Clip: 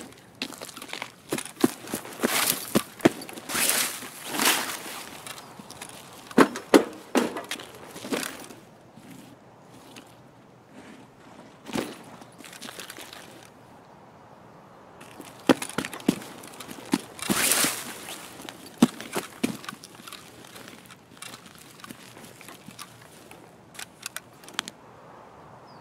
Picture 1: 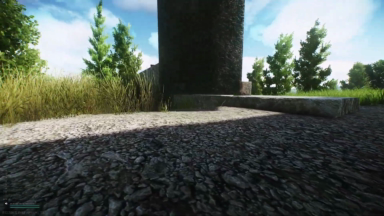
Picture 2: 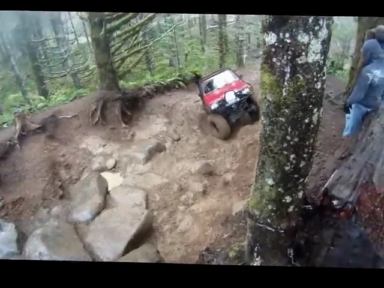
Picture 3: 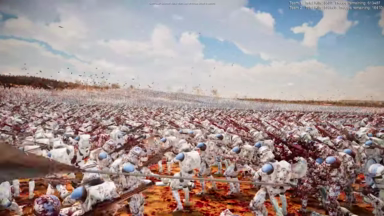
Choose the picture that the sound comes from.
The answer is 1